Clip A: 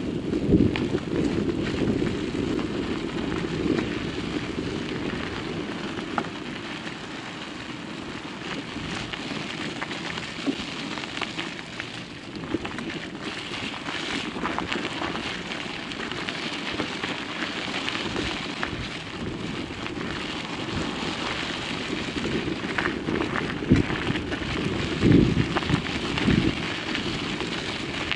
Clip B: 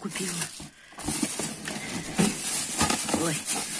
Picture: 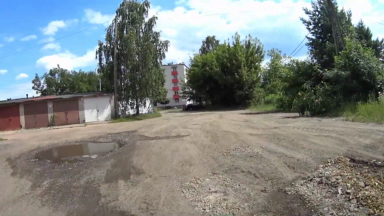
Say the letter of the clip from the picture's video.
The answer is A